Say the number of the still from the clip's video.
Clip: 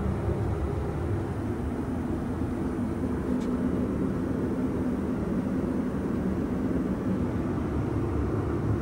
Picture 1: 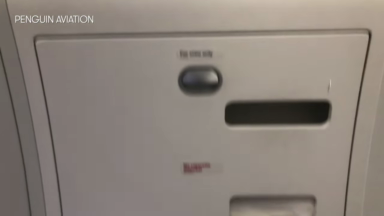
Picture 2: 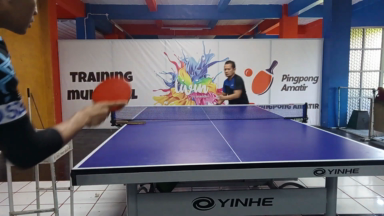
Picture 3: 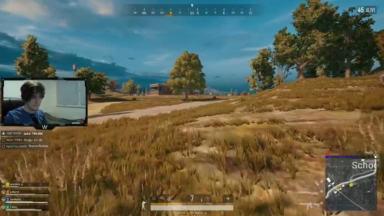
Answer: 1